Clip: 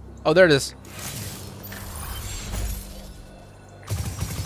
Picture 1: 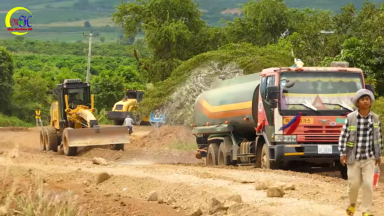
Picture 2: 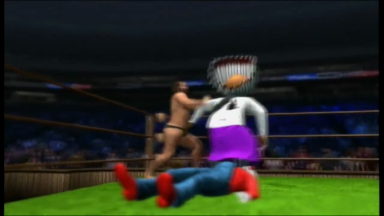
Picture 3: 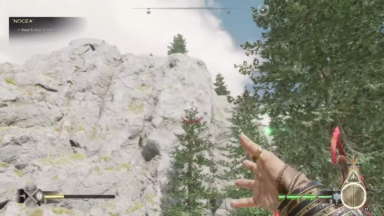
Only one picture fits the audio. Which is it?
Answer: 3